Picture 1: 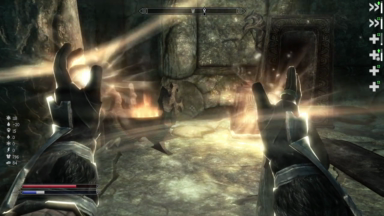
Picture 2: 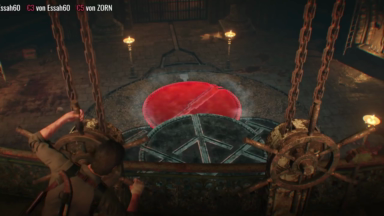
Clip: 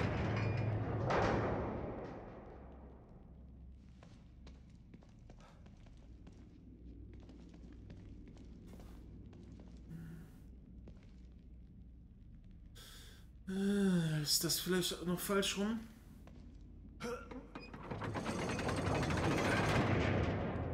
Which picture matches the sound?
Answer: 2